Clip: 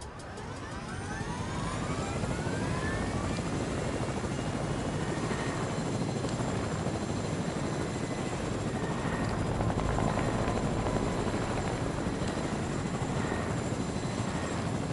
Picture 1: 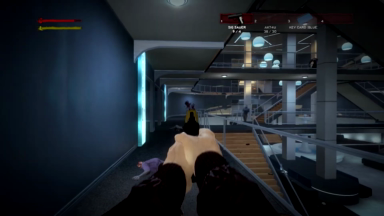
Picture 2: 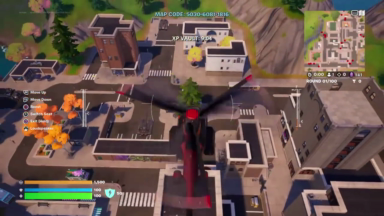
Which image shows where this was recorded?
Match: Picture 2